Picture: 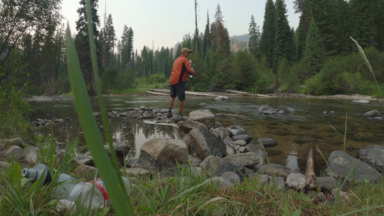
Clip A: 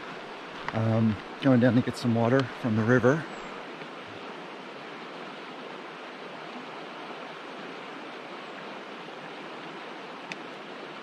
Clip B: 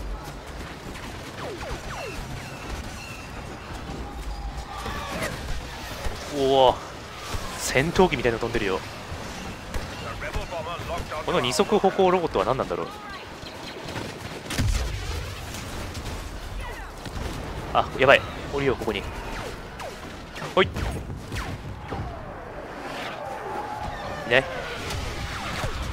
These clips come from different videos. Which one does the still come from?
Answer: A